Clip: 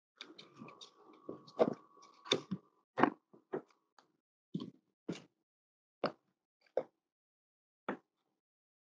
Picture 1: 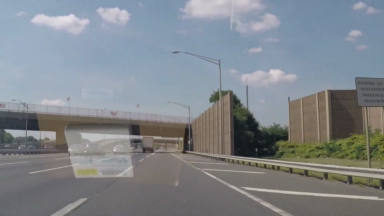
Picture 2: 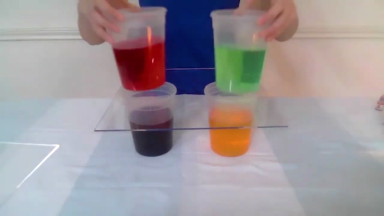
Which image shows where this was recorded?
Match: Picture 2